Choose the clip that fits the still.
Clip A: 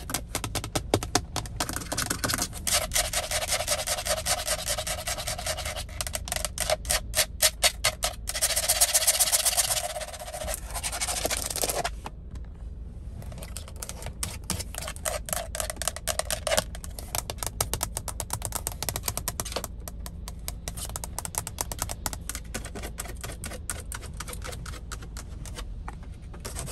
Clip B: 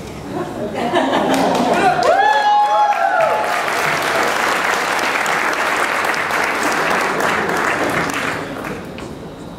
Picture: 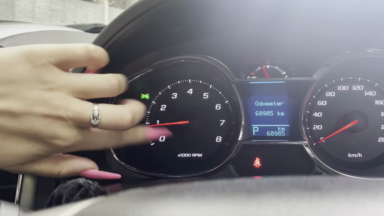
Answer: A